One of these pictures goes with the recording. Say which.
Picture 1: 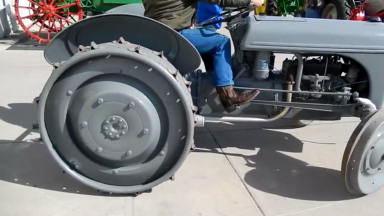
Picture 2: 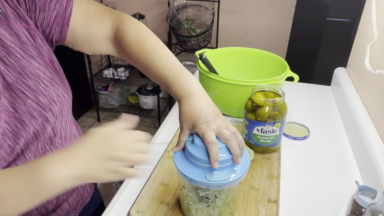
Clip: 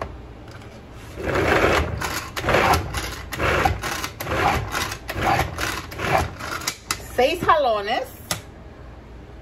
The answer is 2